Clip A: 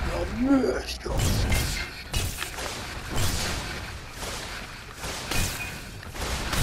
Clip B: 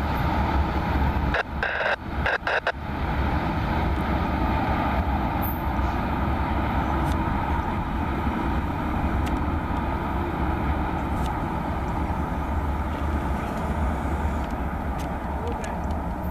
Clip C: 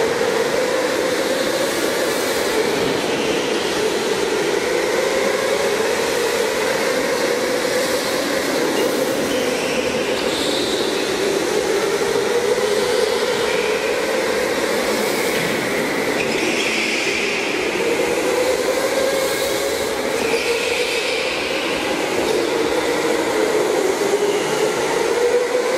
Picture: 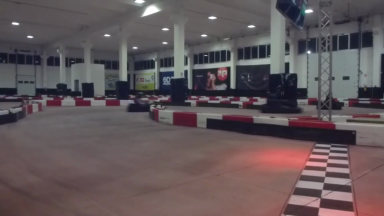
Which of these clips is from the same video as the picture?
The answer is C